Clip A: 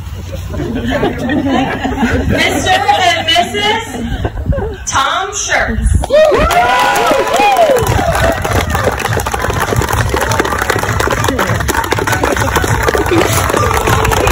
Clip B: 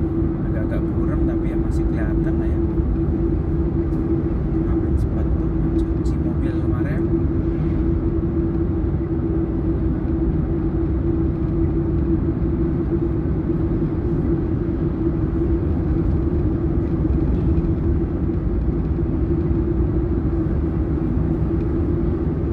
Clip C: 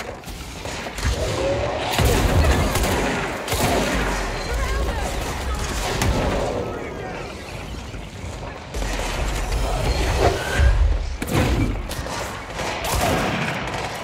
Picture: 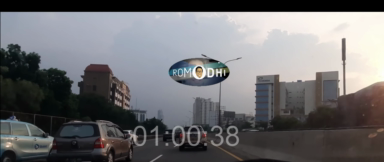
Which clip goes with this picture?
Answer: B